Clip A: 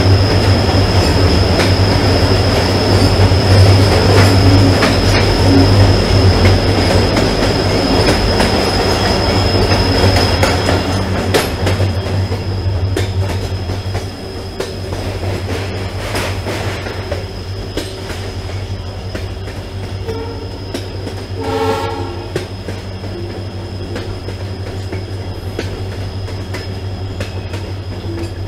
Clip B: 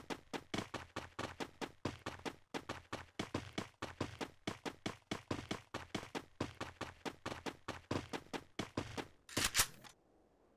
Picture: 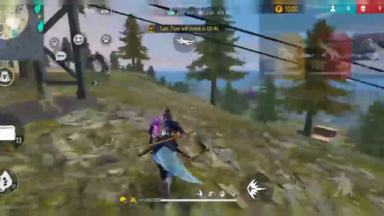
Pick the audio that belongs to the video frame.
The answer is B